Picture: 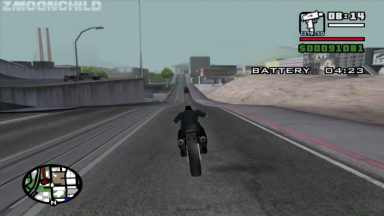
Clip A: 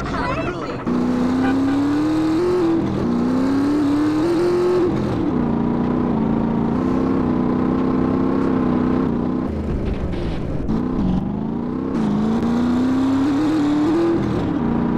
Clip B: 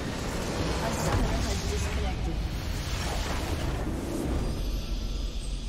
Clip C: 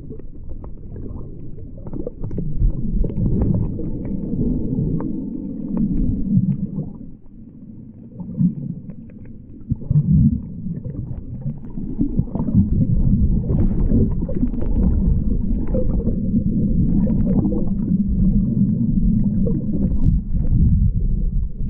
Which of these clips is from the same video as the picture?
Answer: A